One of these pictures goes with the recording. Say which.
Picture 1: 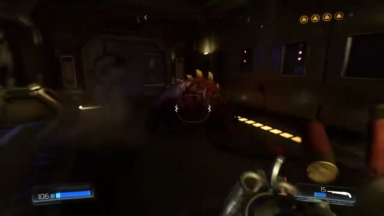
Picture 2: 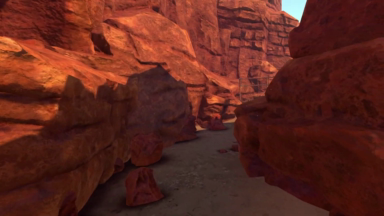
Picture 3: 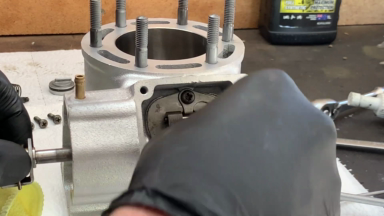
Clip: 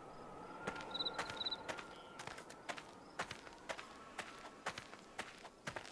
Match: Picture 2